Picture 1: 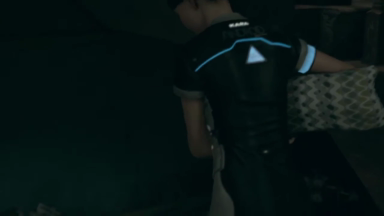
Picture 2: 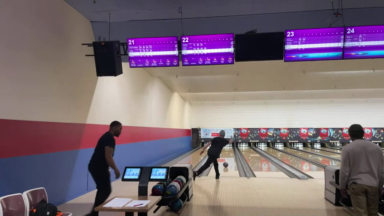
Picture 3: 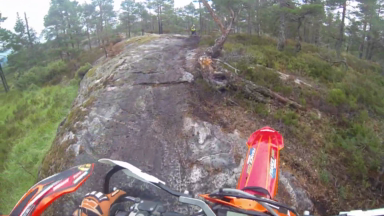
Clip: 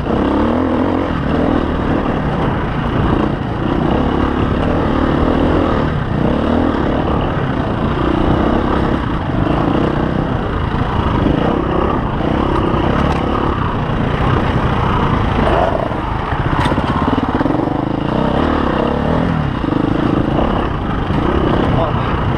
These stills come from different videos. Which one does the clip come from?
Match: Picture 3